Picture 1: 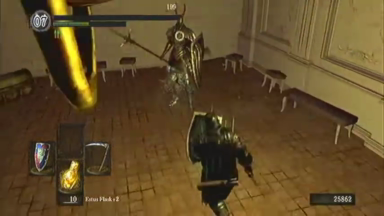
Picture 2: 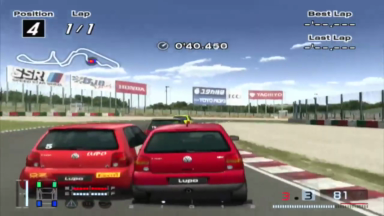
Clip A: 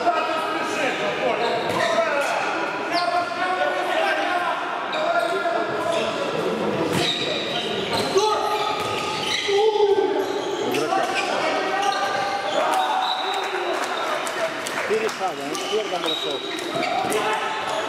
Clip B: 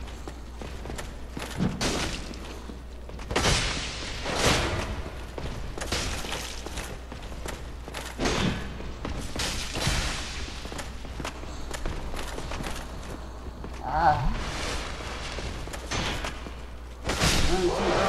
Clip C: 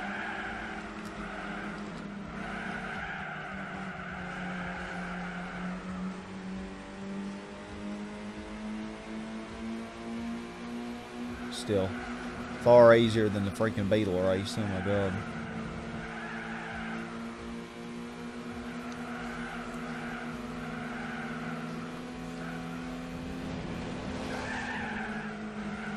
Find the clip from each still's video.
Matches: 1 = B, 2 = C